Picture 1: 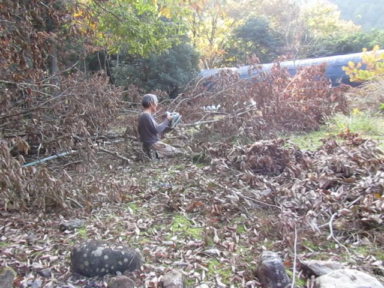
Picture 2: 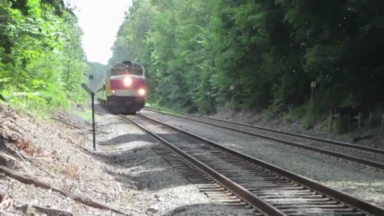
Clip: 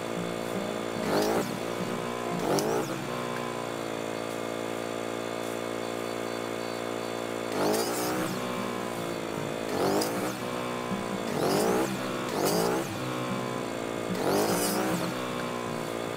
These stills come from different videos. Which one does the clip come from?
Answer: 1